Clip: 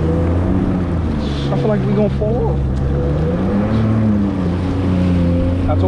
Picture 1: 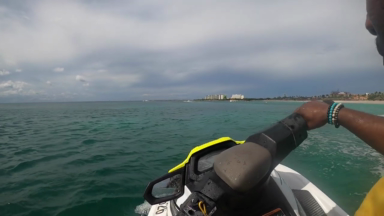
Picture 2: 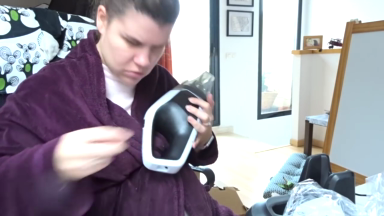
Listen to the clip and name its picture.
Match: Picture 1